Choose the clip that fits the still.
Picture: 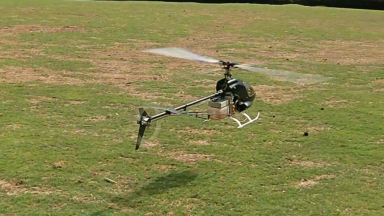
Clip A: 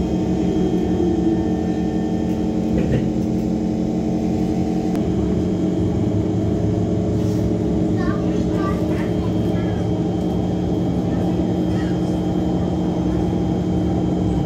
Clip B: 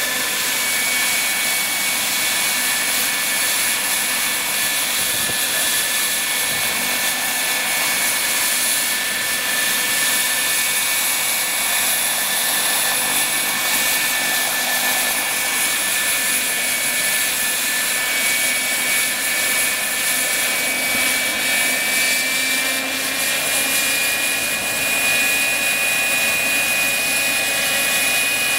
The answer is B